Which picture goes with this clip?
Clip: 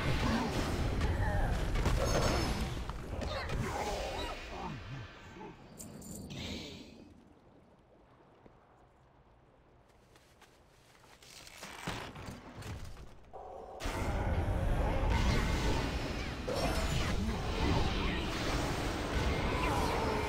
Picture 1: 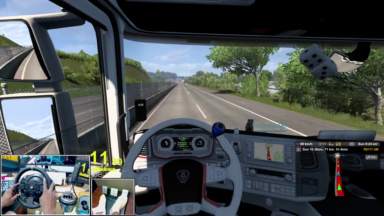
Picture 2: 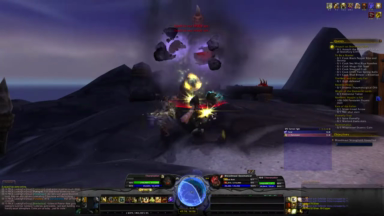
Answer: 2